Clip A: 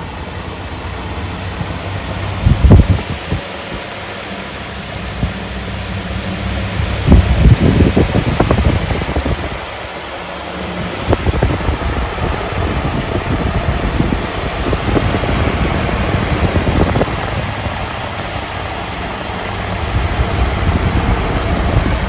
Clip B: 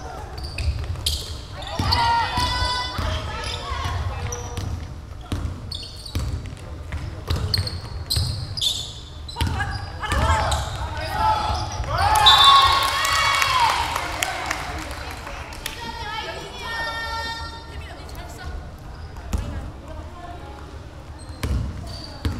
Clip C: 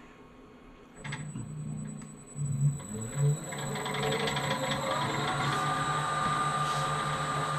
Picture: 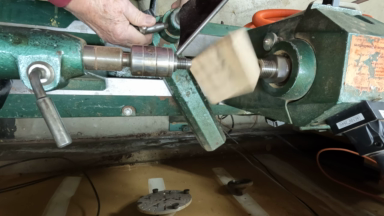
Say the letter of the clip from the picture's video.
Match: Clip C